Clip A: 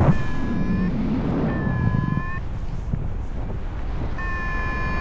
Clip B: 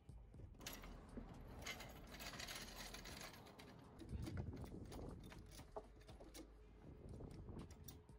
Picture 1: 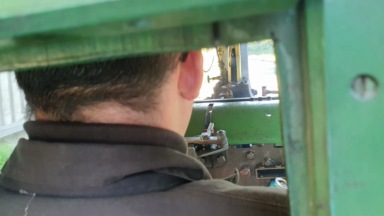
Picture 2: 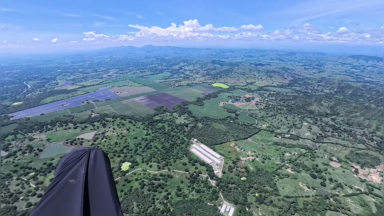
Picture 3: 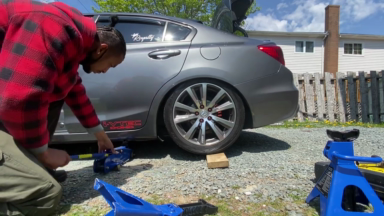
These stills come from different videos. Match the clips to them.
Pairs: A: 2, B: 3